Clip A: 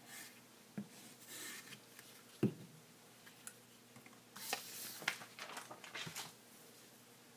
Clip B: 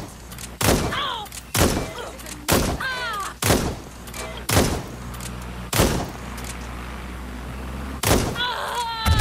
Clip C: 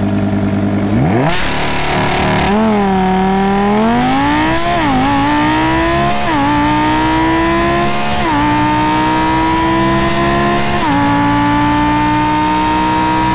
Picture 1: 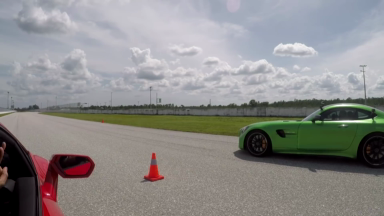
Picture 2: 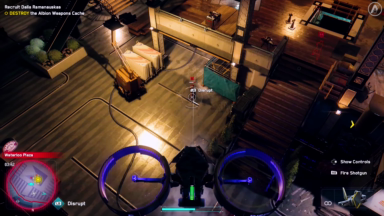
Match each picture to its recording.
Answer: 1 C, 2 B